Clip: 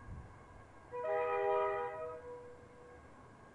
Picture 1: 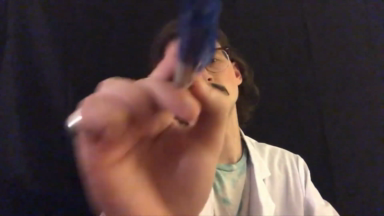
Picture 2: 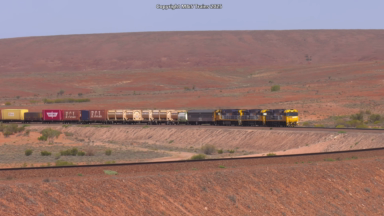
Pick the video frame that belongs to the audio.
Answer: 2